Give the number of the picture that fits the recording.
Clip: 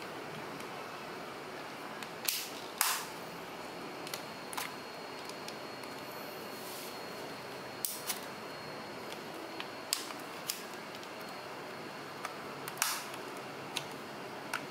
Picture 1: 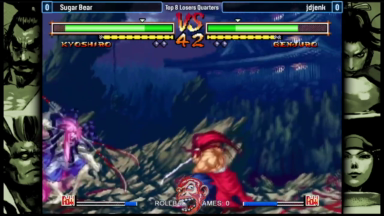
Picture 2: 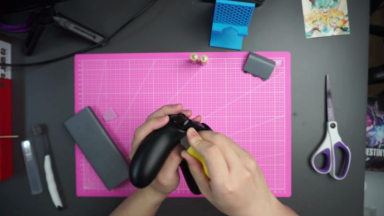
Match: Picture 2